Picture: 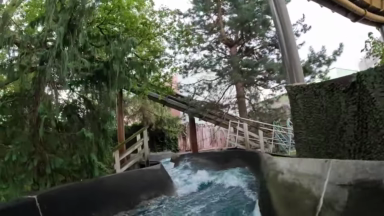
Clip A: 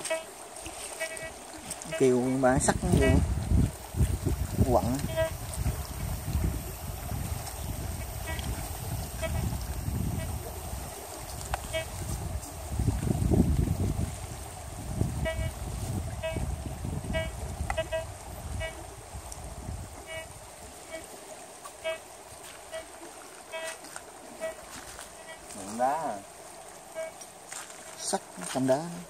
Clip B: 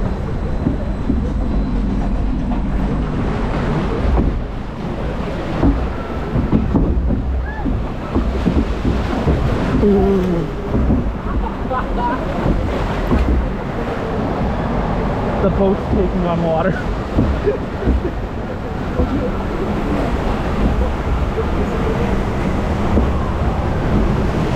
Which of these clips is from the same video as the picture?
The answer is B